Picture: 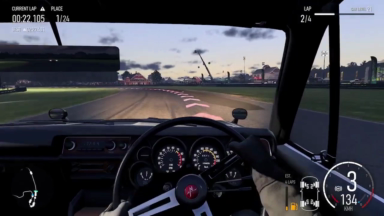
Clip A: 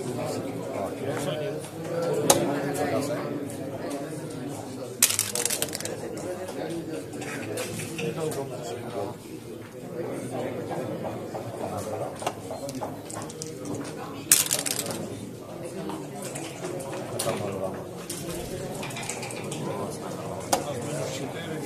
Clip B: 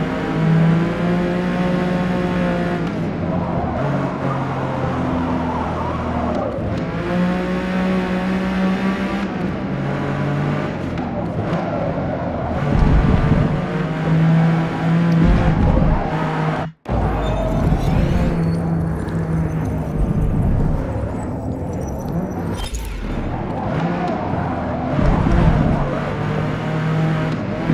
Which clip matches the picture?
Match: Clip B